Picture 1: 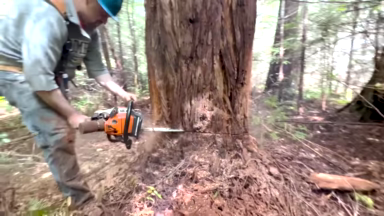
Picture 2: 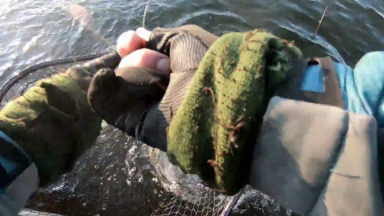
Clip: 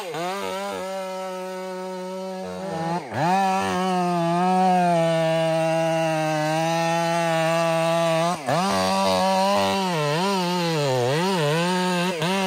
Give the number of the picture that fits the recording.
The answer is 1